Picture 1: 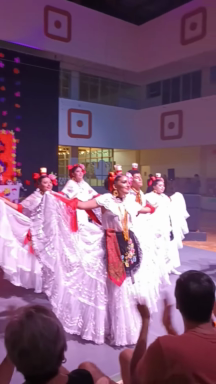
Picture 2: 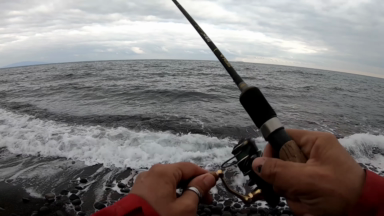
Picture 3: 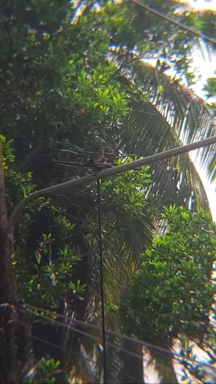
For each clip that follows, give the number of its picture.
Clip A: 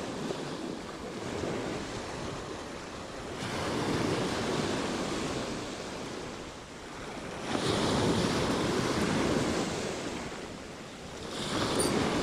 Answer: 2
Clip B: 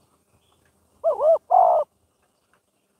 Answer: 3